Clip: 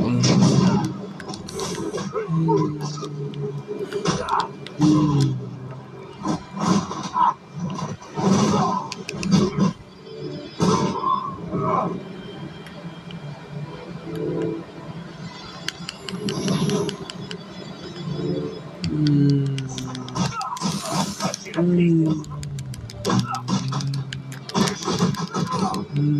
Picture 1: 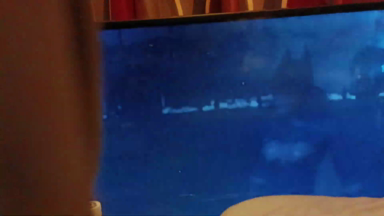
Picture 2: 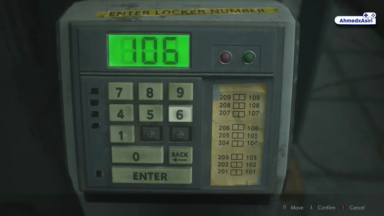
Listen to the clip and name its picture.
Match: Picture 1